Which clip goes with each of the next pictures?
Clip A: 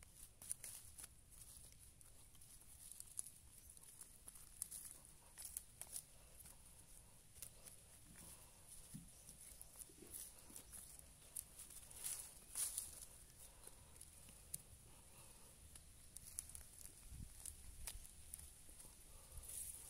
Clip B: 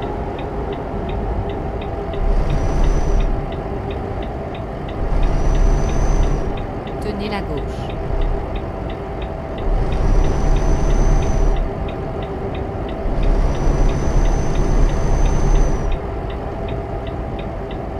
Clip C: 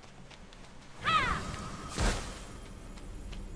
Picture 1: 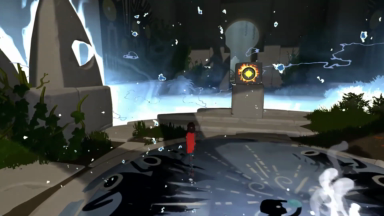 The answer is C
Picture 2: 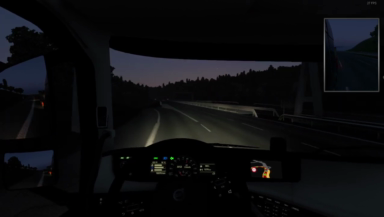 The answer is B